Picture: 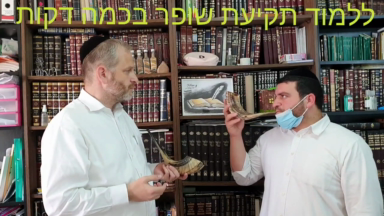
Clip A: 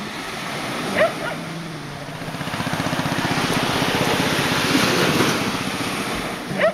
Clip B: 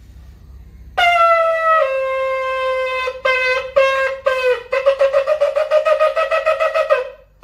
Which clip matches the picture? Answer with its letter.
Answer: B